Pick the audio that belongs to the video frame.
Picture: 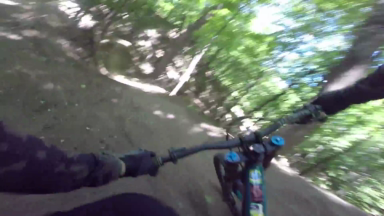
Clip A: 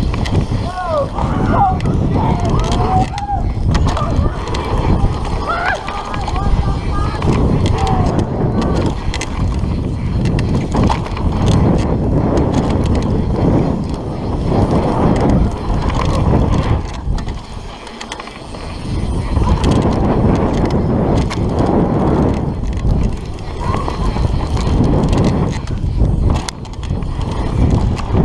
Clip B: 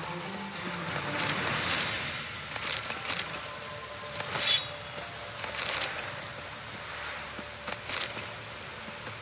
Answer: A